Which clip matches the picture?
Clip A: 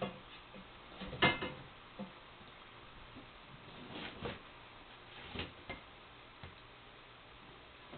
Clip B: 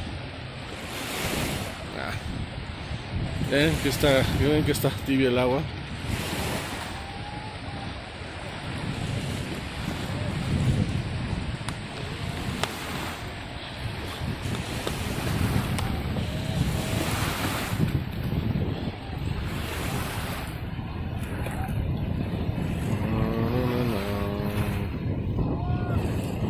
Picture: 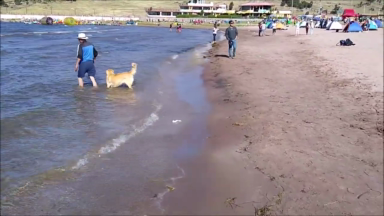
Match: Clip B